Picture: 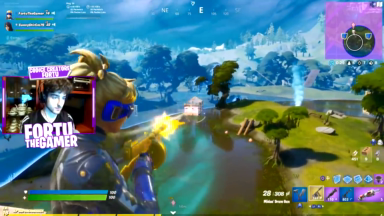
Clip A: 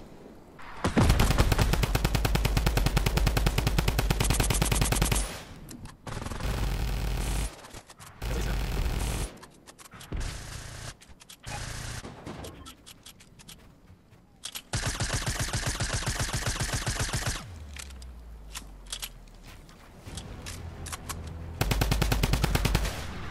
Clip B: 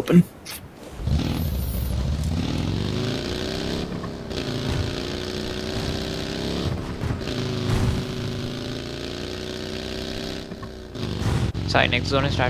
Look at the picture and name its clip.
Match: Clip A